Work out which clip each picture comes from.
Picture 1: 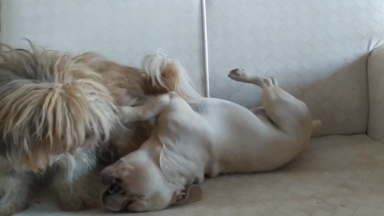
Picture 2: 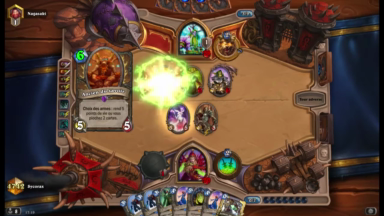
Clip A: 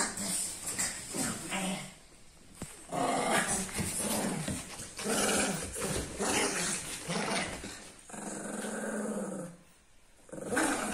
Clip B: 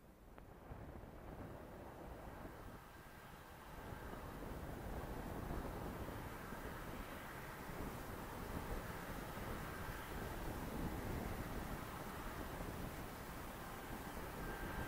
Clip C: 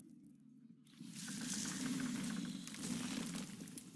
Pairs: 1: A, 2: C